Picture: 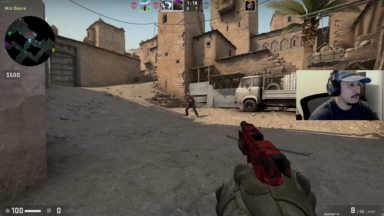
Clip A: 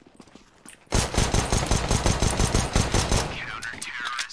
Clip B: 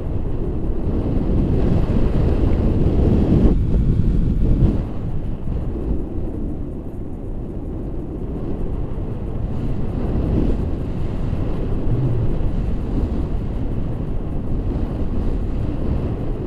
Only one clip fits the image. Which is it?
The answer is A